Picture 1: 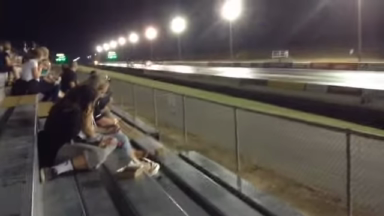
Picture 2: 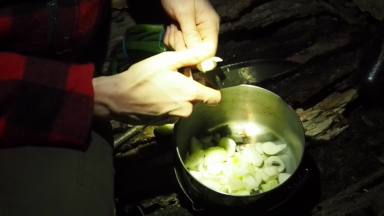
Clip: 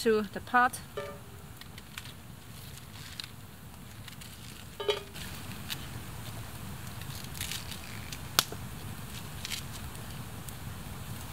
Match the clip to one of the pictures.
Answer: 2